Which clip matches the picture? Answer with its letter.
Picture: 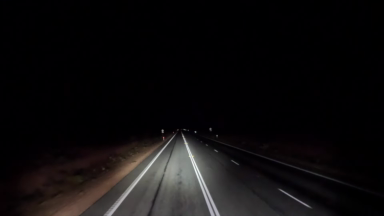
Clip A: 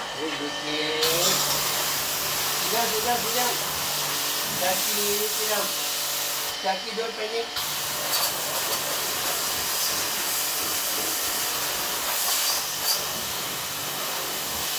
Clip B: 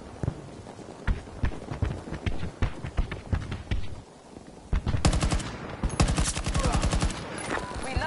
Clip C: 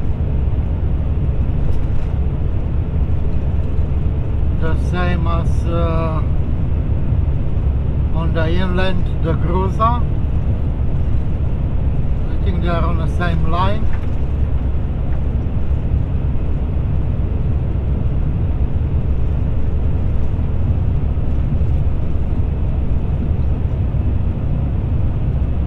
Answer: C